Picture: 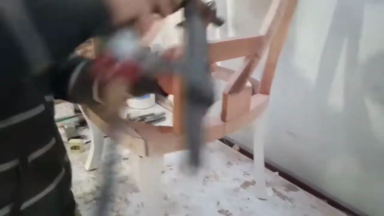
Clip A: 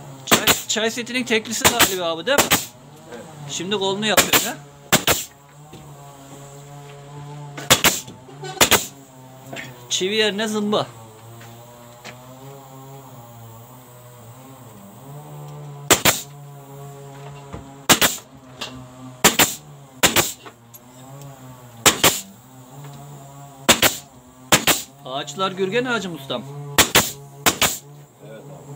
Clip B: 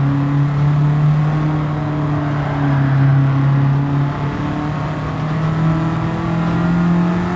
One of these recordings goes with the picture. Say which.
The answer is A